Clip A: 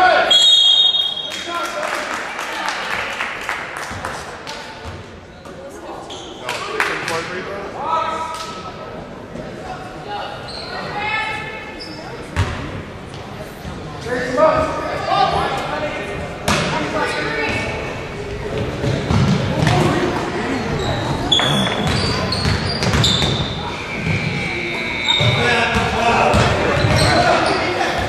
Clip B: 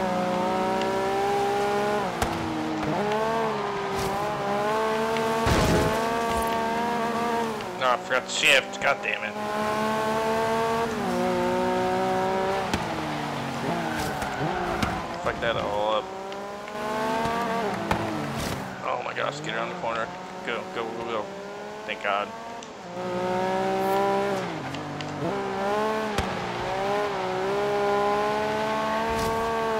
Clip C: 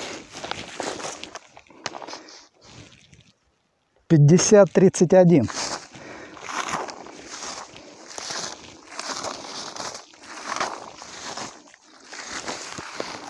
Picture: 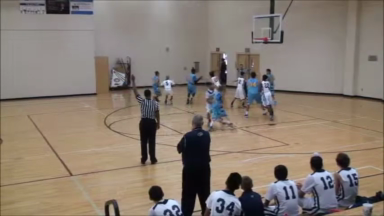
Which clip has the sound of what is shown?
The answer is A